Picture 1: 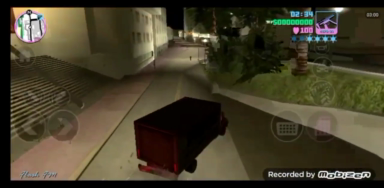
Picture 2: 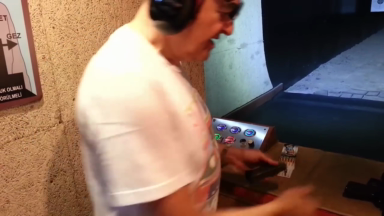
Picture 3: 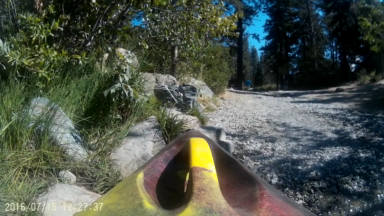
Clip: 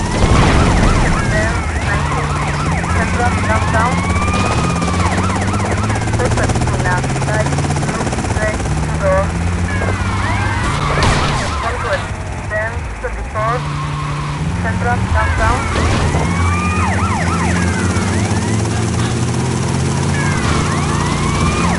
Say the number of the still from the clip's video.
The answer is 1